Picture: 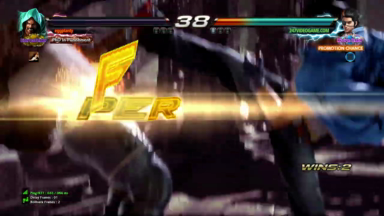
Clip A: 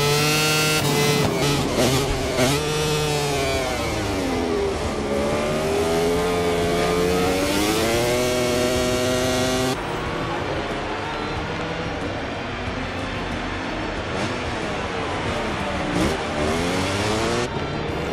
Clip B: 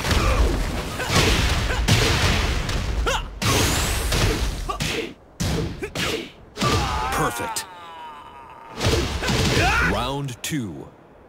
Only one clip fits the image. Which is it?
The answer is B